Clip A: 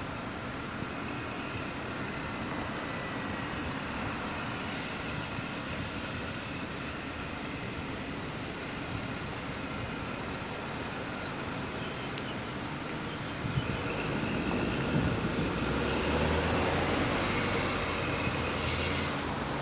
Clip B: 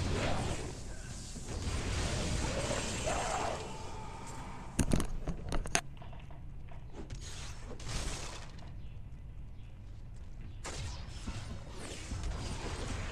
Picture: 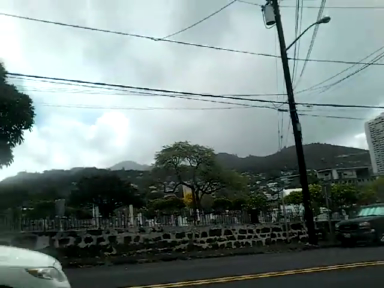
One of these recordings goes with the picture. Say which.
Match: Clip A